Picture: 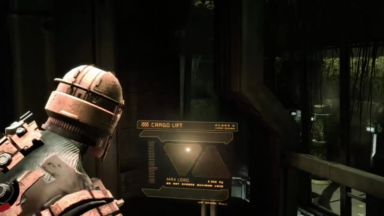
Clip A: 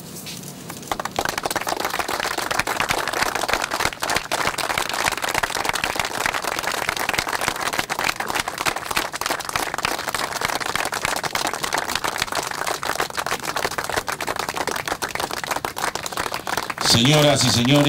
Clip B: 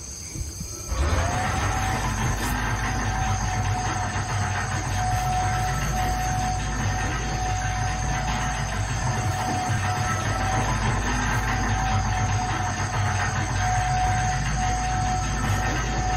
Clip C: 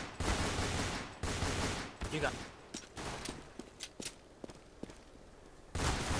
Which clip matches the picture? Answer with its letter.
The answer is B